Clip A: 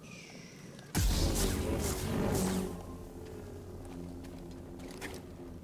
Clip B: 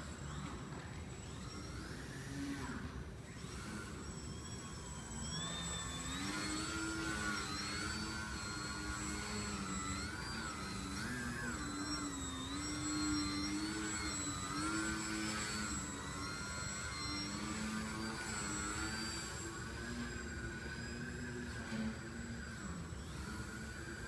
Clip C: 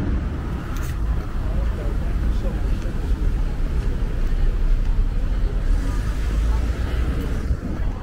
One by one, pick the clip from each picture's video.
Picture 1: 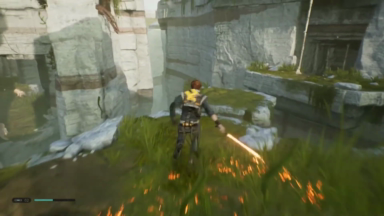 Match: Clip A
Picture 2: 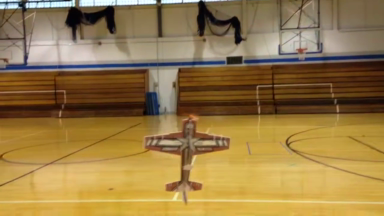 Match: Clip B